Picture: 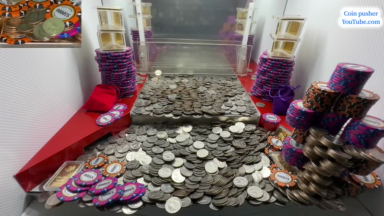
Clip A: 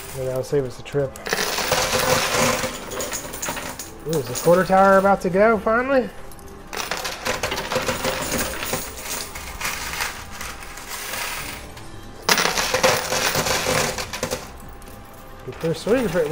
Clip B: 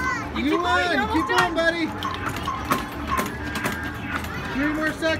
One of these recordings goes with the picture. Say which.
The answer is A